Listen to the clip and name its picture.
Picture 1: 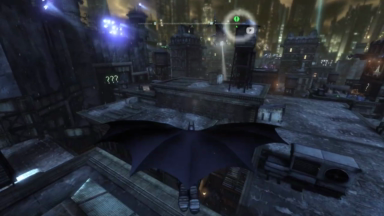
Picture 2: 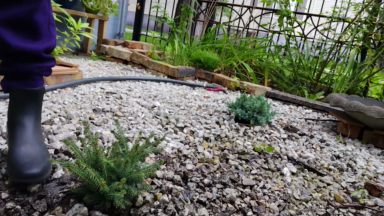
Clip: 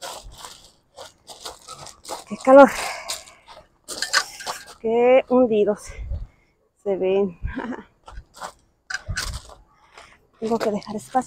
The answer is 2